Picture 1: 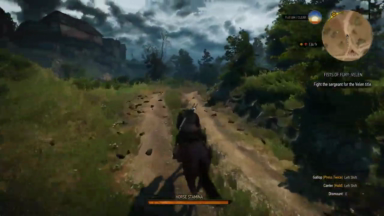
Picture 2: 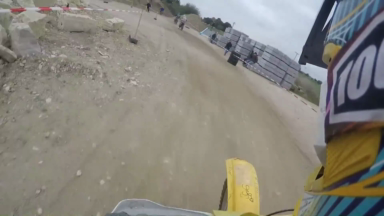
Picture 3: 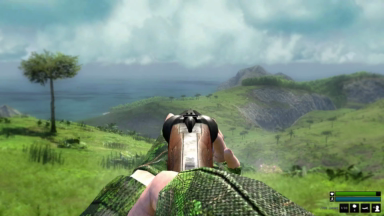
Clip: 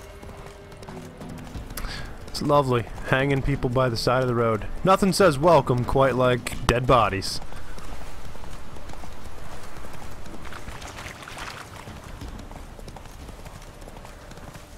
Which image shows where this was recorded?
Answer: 1